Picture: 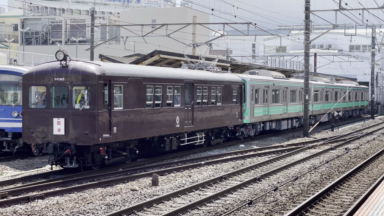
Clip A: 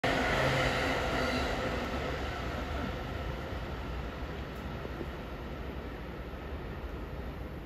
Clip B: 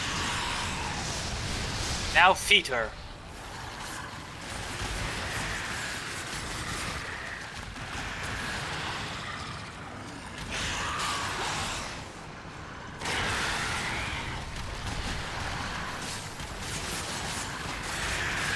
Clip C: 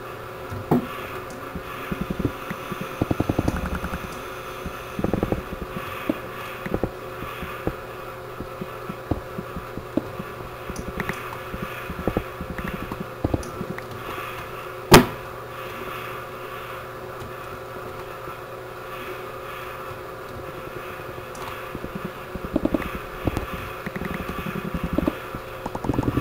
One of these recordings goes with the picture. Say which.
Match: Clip A